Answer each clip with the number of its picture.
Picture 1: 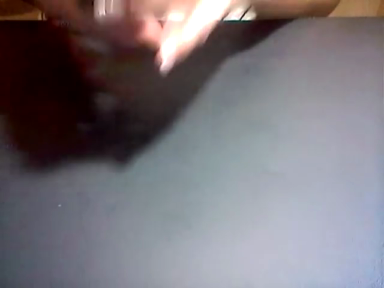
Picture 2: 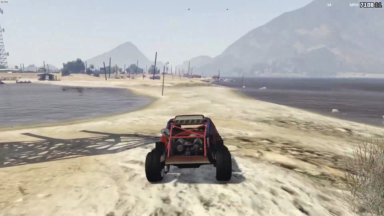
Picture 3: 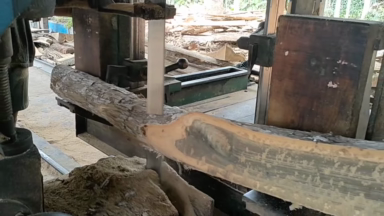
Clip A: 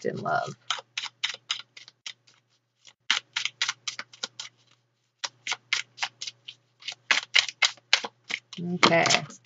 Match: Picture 1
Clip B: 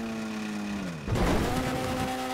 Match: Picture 2